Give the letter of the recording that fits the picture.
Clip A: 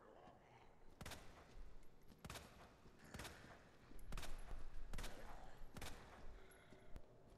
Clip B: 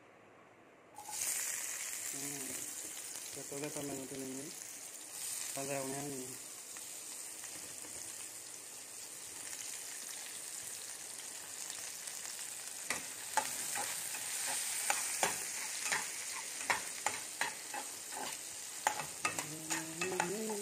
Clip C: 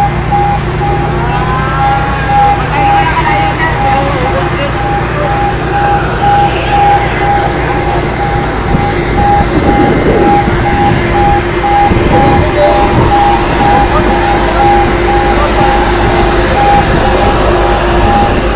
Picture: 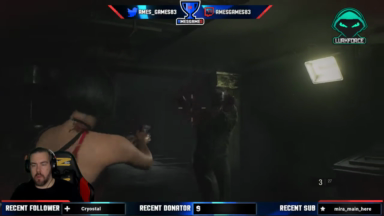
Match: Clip A